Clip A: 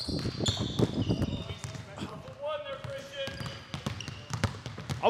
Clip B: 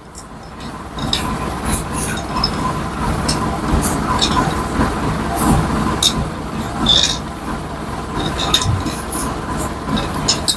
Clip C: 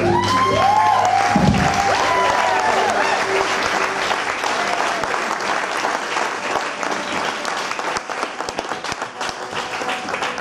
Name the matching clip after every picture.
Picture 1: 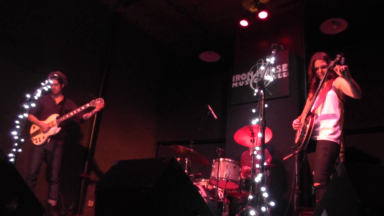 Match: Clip C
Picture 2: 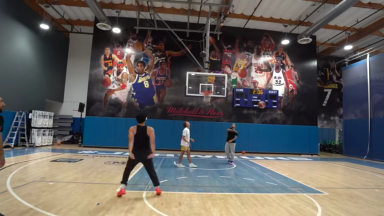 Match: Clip A